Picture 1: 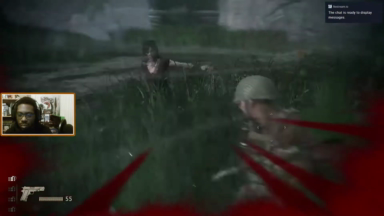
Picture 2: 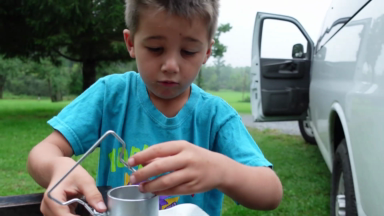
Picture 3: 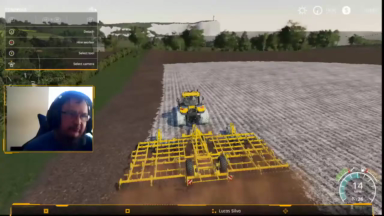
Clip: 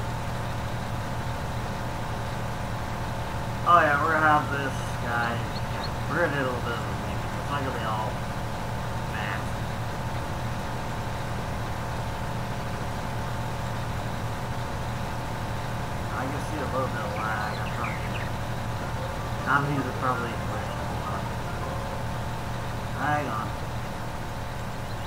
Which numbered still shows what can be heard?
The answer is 3